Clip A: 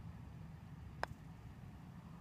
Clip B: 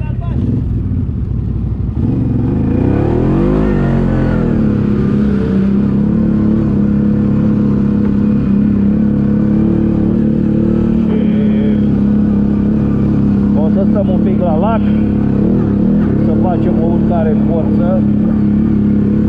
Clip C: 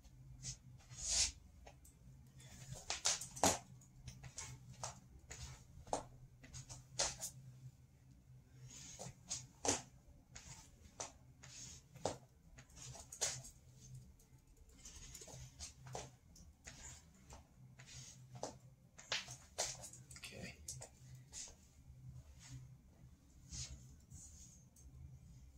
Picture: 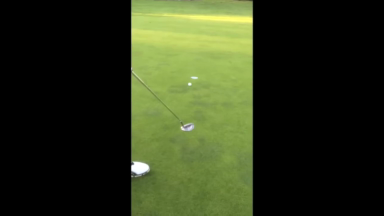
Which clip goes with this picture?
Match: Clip A